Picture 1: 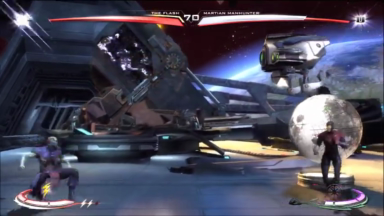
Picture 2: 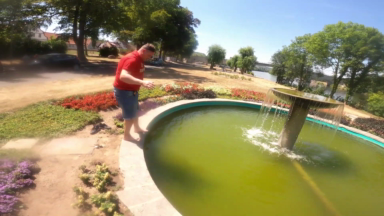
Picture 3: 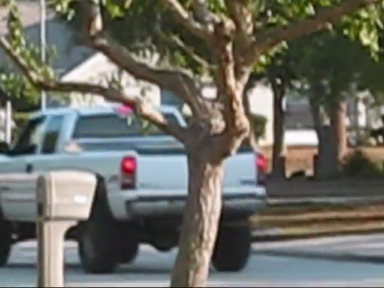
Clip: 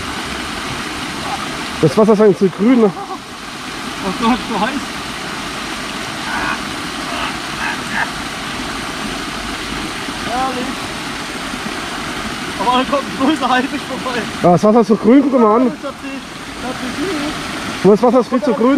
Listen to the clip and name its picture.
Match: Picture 2